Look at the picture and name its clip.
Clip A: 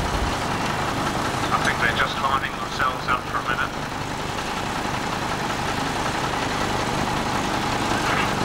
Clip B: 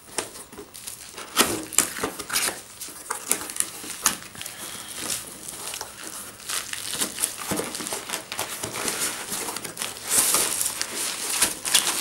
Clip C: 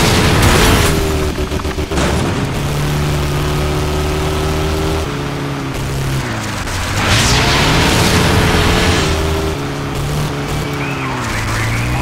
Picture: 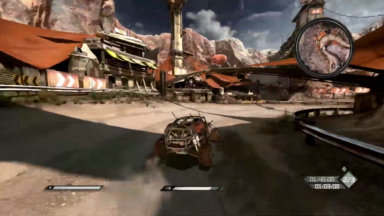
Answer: C